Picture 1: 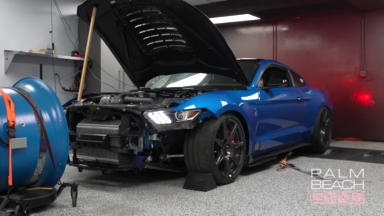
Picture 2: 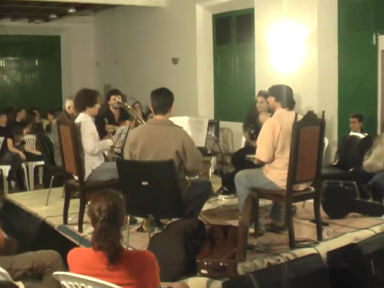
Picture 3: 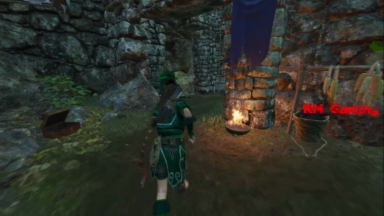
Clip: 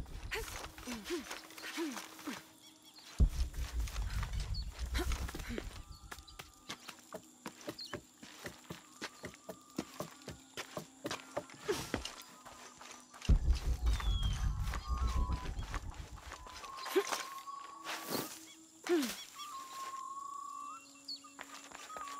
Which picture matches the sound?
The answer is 3